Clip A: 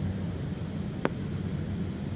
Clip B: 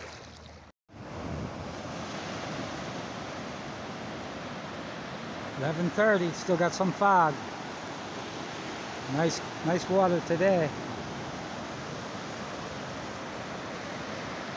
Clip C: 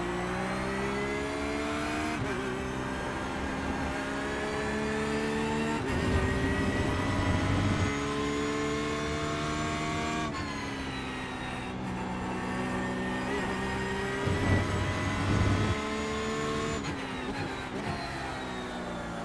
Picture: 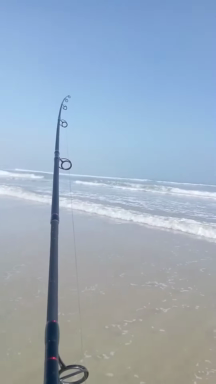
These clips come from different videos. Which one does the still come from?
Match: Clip B